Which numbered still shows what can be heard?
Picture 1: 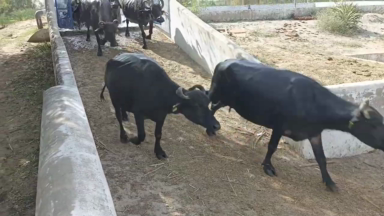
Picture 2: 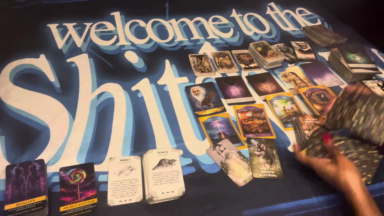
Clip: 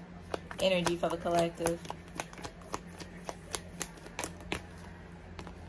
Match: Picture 2